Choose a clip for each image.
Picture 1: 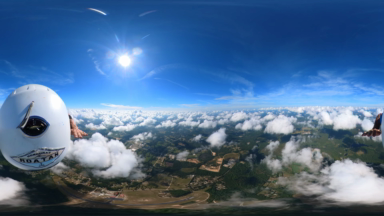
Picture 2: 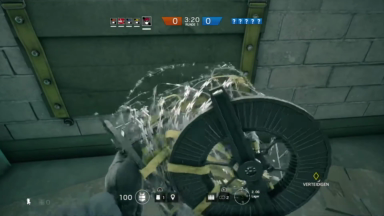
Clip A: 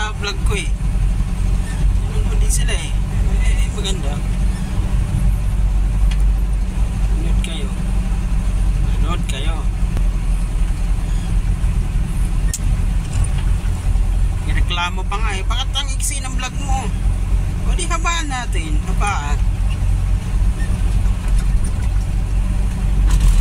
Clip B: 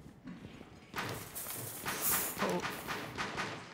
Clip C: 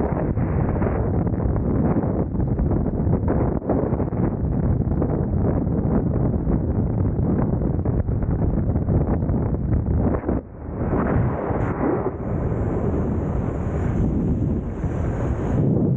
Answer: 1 C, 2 B